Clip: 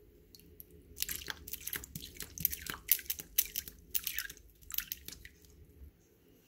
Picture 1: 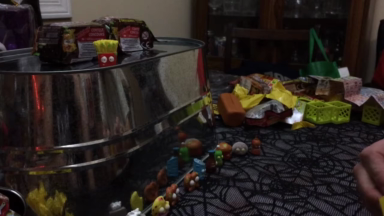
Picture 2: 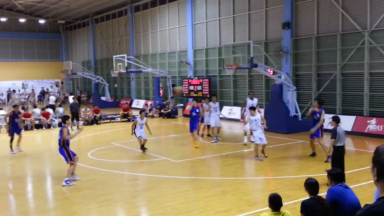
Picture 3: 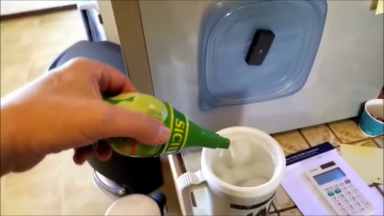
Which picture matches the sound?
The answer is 3